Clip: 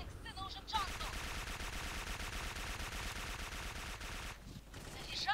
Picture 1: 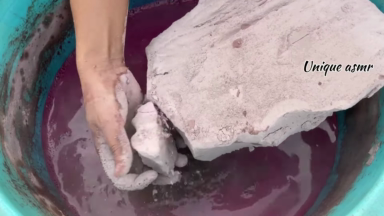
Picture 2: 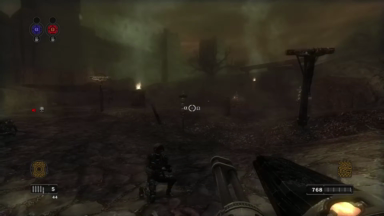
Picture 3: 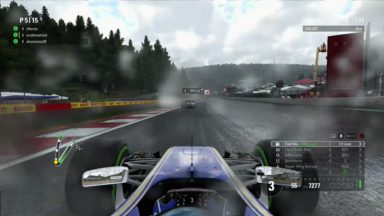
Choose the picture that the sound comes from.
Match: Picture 2